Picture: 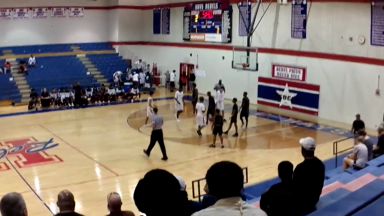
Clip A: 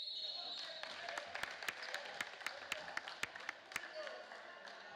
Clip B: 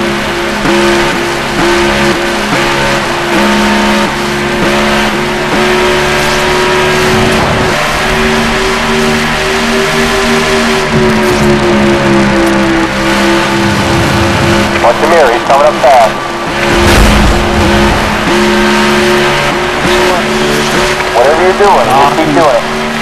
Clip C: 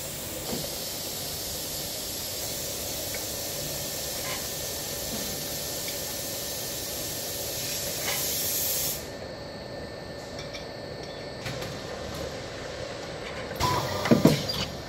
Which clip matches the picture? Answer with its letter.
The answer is A